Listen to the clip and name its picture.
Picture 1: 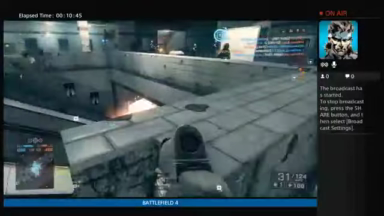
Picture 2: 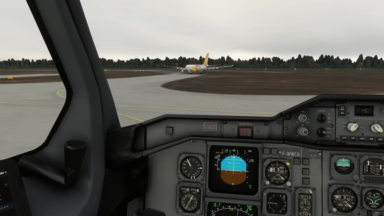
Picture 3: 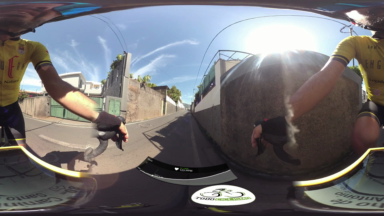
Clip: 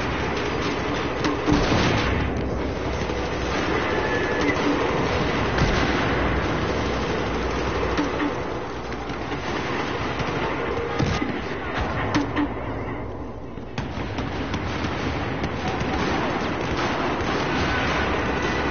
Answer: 1